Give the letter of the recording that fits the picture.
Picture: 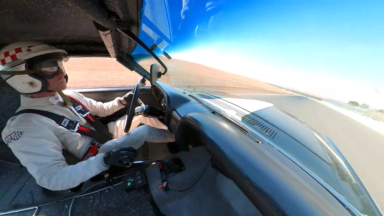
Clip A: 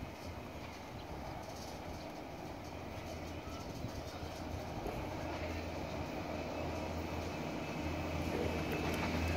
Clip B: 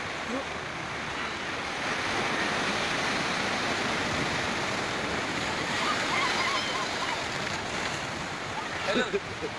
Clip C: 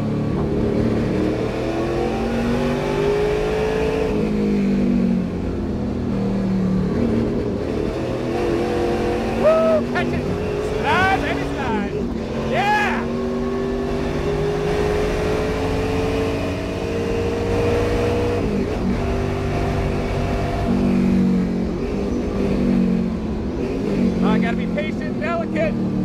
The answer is C